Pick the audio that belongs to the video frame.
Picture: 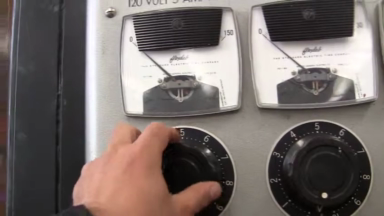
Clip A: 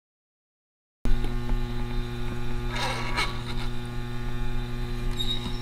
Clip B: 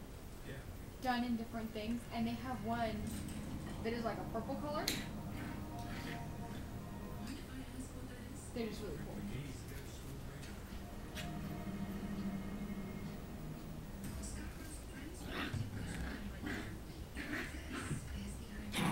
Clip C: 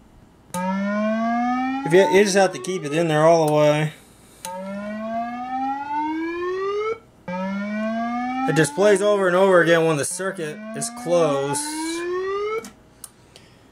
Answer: A